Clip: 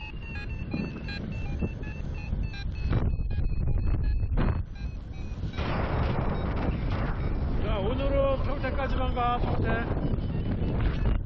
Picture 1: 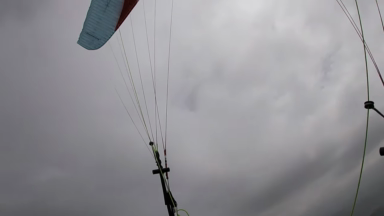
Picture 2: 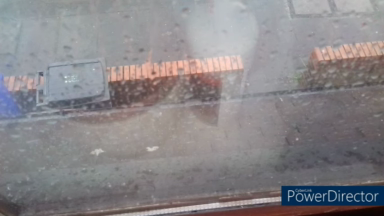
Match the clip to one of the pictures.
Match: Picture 1